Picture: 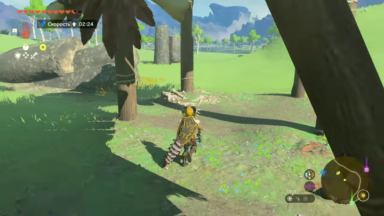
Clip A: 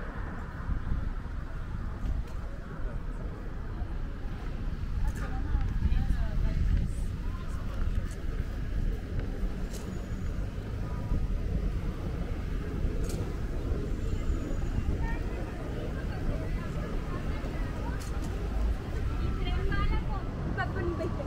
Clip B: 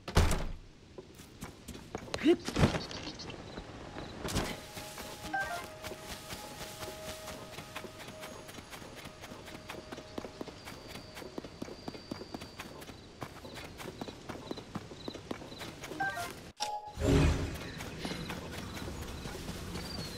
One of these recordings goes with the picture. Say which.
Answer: B